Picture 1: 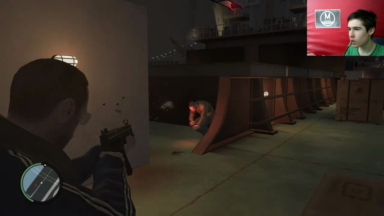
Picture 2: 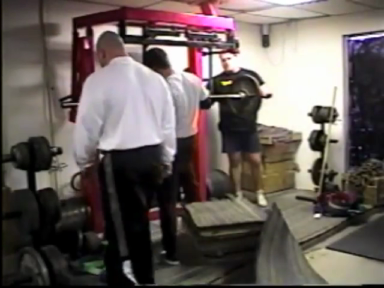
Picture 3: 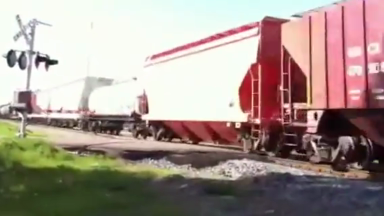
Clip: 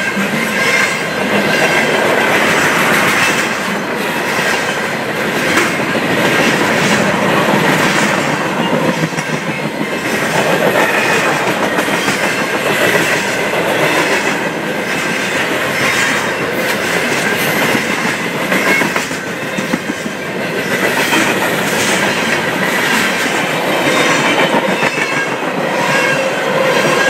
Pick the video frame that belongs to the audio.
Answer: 3